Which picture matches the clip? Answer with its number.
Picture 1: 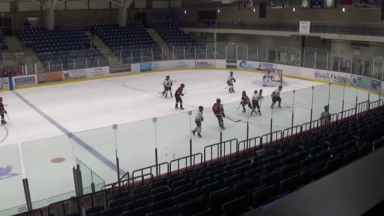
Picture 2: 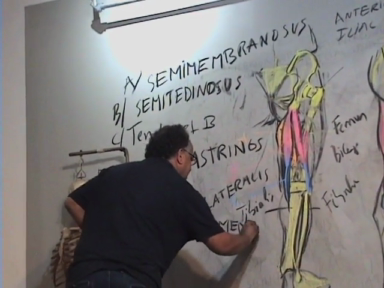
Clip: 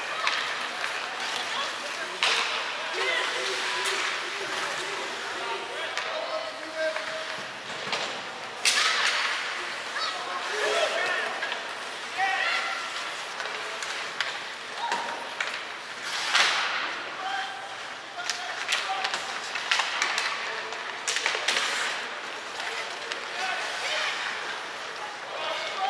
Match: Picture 1